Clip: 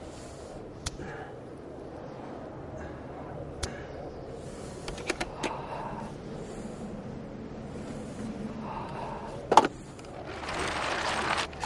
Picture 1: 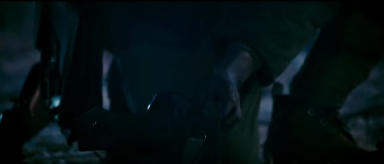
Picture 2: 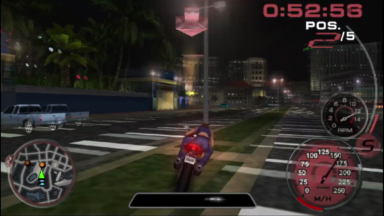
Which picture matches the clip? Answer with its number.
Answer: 1